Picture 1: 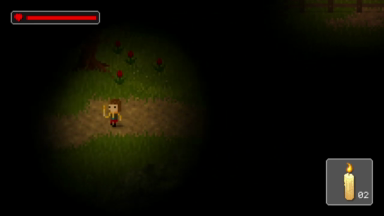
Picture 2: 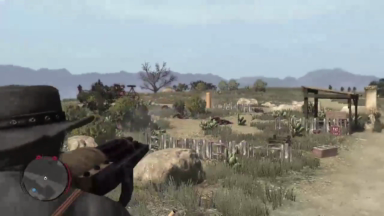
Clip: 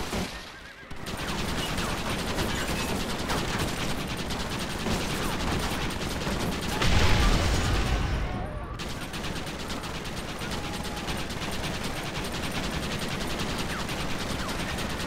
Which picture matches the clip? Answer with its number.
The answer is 2